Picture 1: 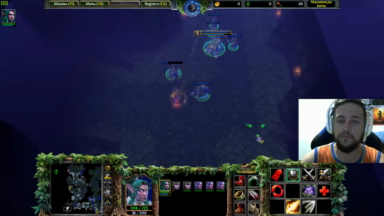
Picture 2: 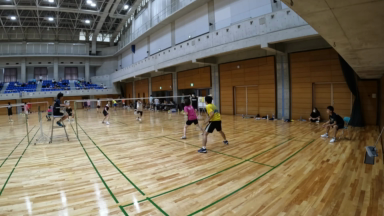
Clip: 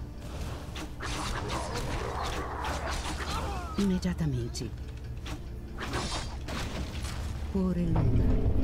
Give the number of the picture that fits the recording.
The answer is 1